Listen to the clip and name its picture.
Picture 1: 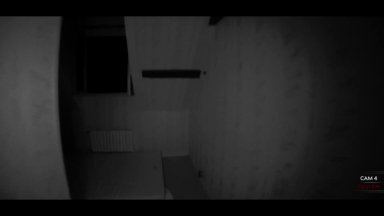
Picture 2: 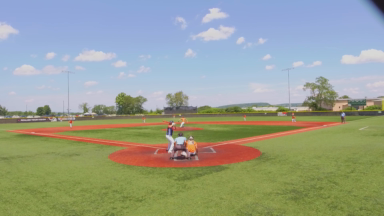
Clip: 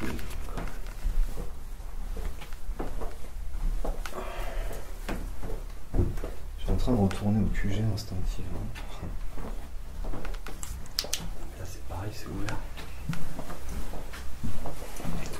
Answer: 1